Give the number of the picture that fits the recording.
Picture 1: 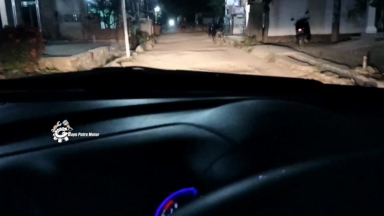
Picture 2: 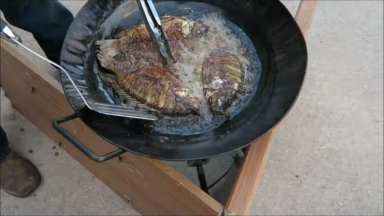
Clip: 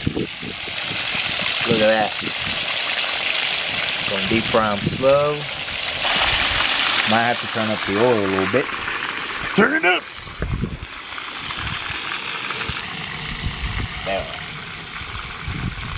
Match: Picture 2